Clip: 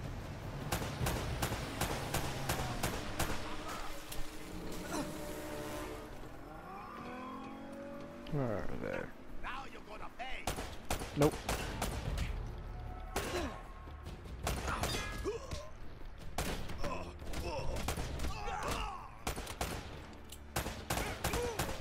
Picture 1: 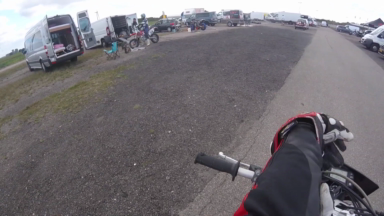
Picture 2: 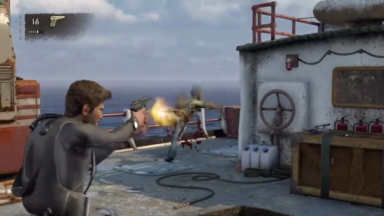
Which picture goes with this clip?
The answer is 2